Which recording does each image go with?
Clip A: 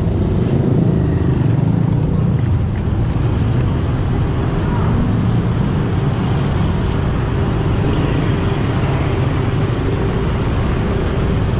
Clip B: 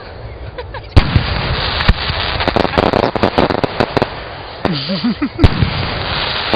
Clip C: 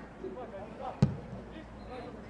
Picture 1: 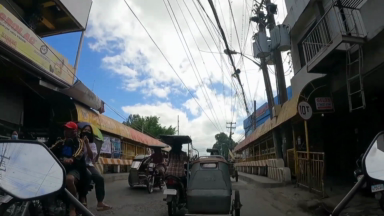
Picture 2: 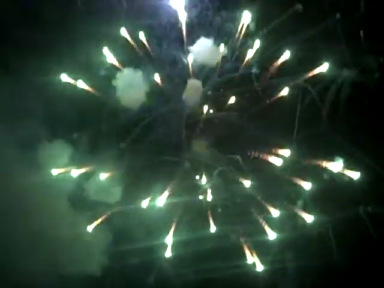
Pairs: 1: A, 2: B